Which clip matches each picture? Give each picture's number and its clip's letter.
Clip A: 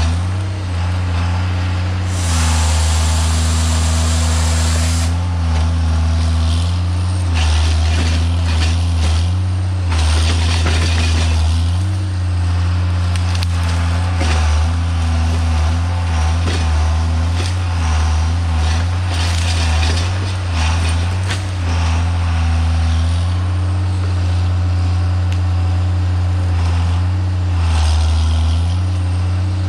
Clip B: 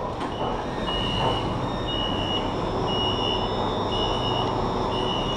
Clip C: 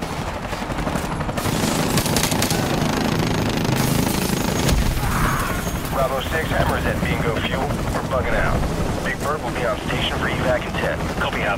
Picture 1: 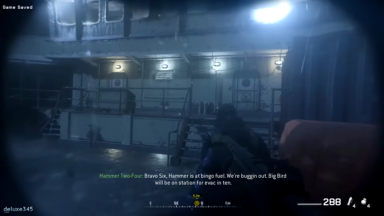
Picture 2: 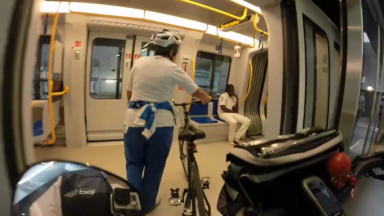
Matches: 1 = C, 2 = B